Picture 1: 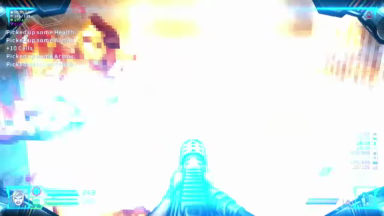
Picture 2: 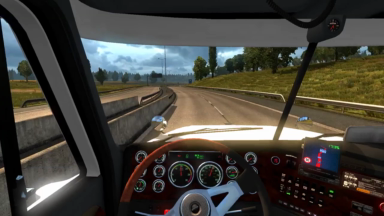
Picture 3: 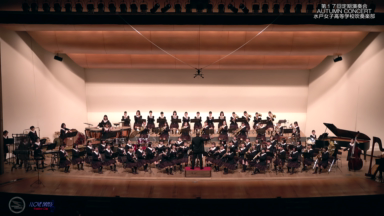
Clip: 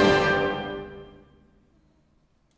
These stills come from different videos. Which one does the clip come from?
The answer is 3